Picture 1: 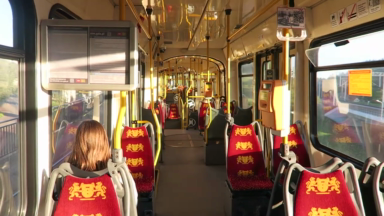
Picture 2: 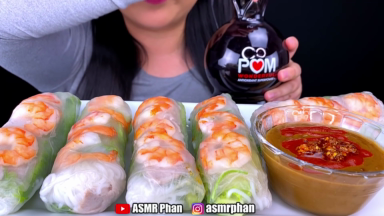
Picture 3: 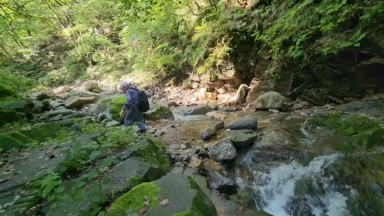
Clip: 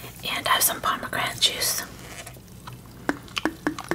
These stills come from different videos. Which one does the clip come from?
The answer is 2